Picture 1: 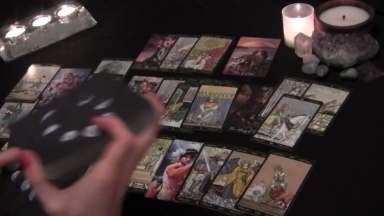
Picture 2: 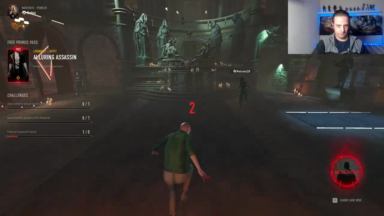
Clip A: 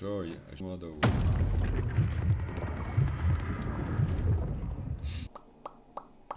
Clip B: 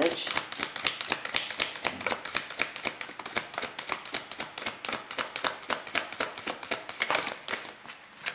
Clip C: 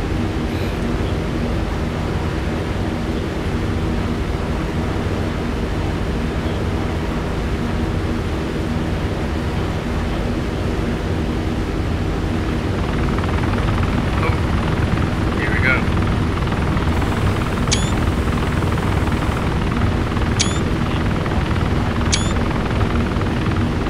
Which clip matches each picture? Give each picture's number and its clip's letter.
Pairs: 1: B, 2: A